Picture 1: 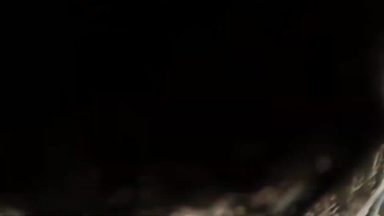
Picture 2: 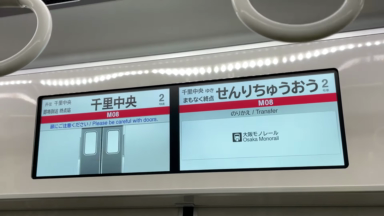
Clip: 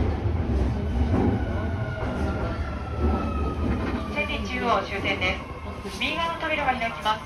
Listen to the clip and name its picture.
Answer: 2